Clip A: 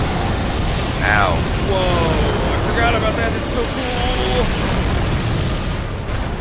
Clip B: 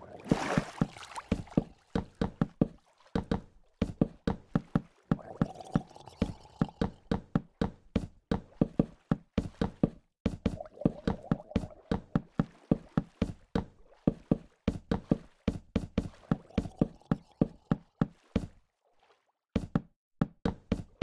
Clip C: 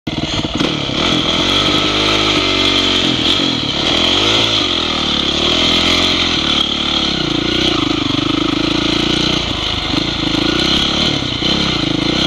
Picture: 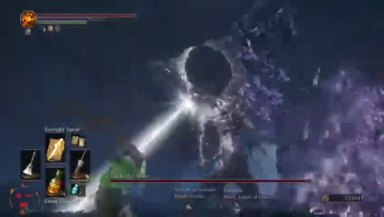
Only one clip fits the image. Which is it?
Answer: A